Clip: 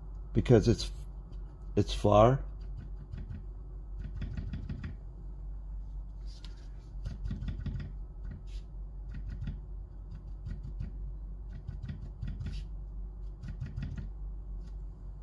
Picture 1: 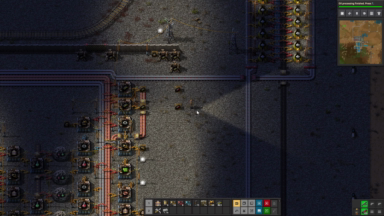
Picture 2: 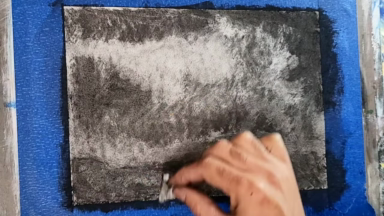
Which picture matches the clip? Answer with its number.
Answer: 2